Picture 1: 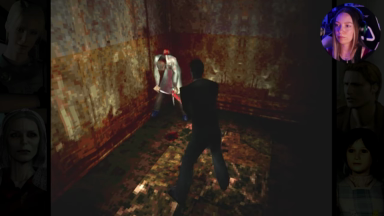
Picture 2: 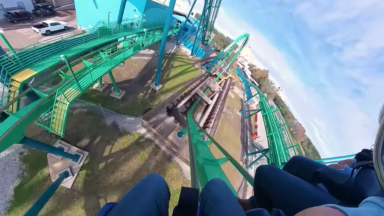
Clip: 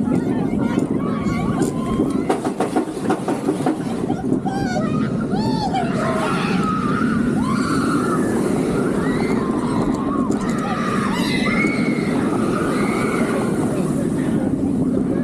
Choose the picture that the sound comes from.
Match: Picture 2